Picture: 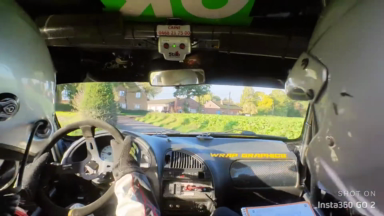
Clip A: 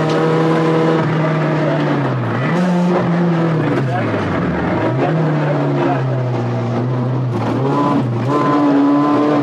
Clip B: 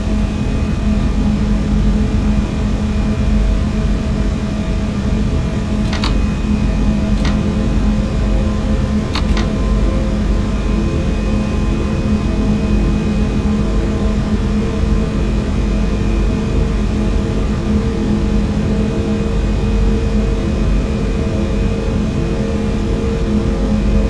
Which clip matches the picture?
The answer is A